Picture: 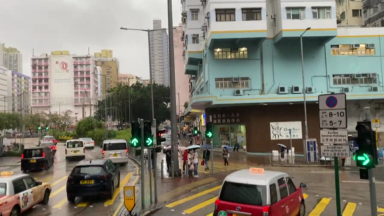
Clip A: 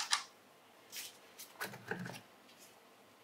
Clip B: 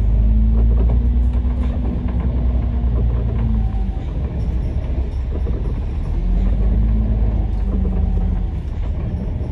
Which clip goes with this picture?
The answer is B